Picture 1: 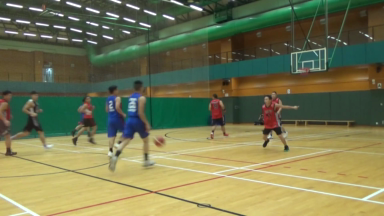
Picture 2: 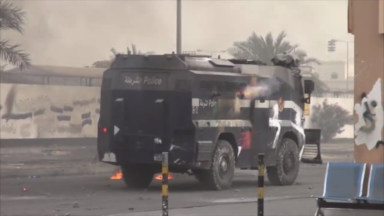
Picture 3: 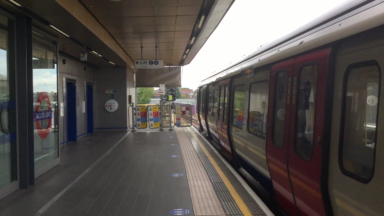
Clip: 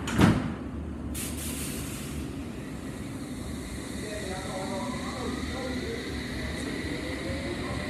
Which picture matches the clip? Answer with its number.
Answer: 3